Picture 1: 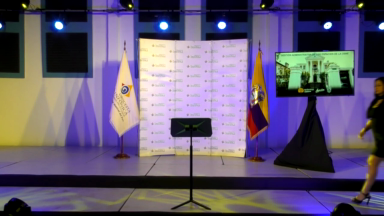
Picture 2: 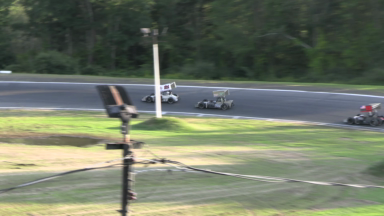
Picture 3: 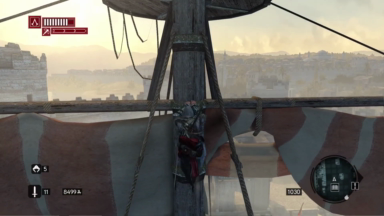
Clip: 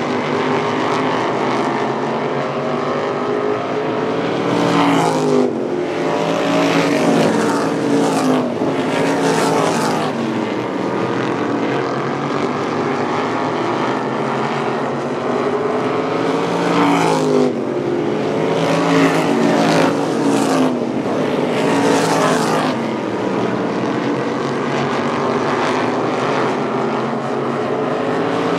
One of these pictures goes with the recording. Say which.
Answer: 2